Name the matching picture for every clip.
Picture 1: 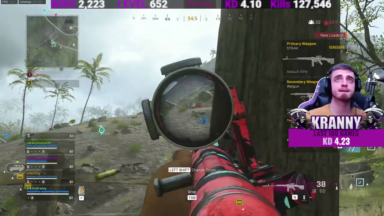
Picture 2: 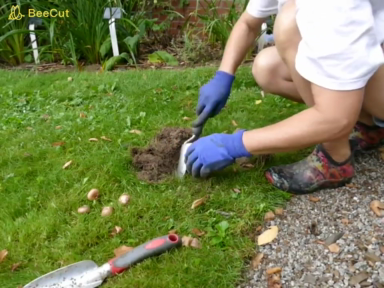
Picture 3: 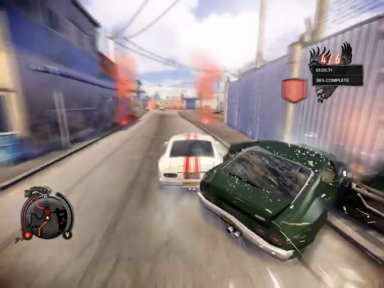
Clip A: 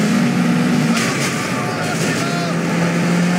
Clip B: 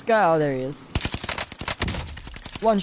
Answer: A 3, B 1